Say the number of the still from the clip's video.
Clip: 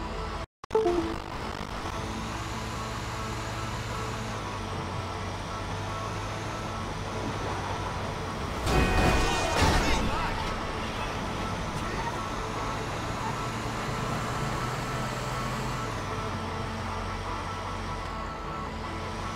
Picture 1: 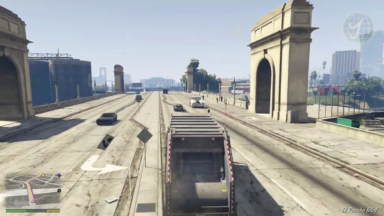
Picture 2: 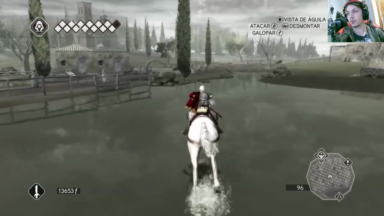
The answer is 1